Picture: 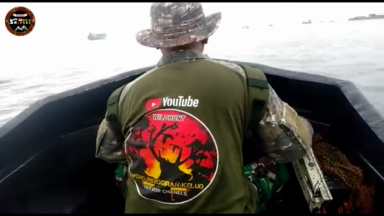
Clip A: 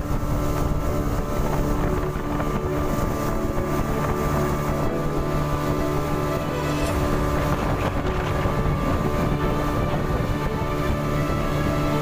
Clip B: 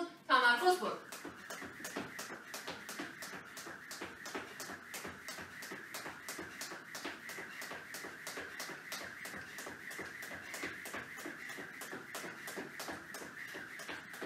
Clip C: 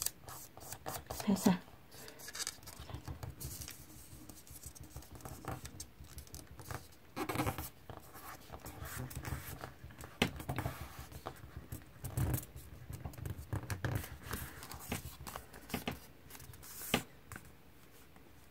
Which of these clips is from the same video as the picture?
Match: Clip A